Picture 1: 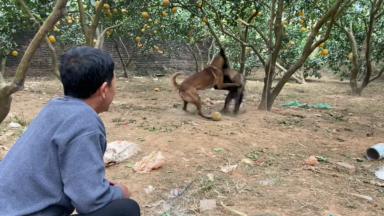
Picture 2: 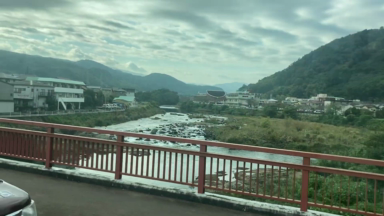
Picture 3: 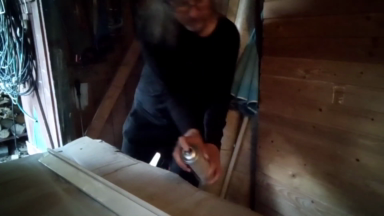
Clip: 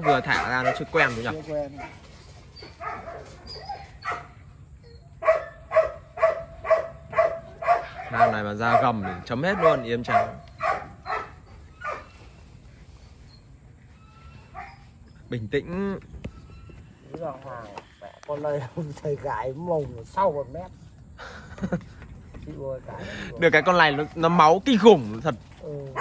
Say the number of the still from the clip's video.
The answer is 1